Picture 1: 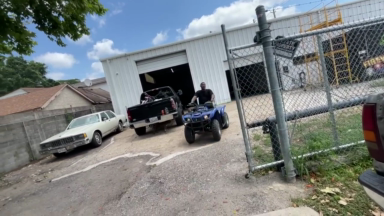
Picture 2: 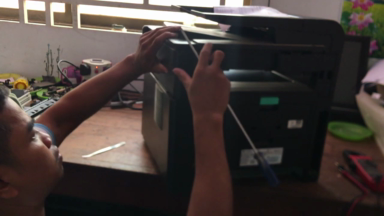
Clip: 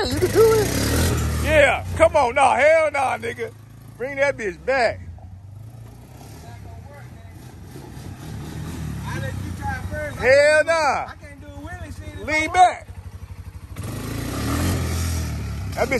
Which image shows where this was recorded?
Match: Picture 1